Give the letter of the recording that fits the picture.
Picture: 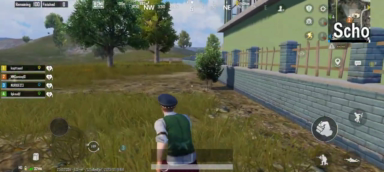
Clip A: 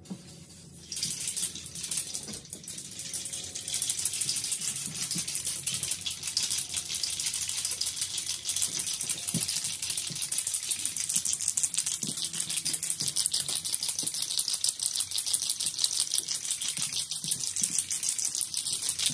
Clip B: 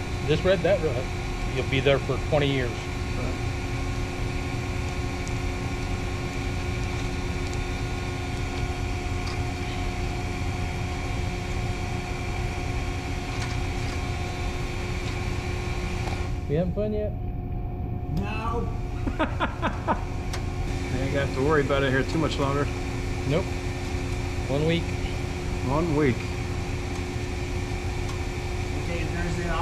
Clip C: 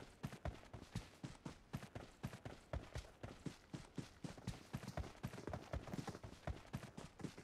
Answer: C